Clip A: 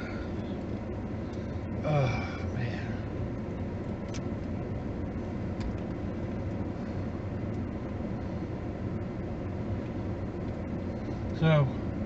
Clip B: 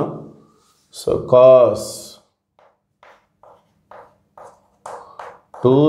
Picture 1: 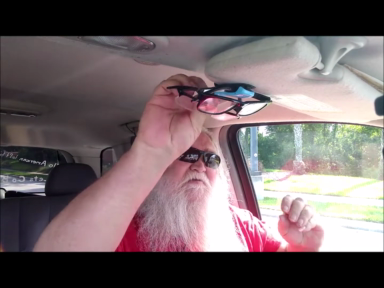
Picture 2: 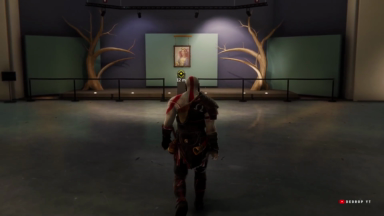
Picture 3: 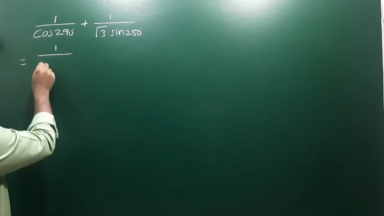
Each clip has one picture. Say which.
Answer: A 1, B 3